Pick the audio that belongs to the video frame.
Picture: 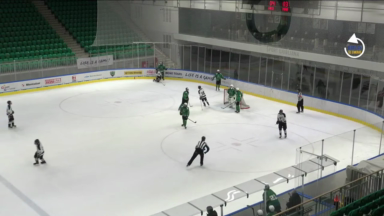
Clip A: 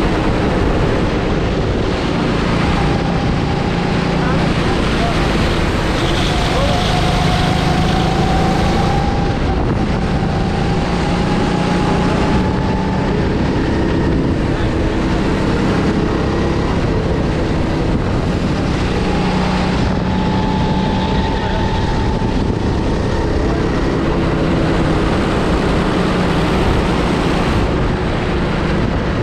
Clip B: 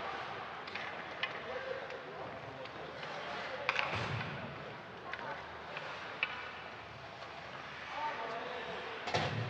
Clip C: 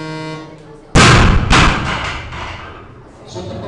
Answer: B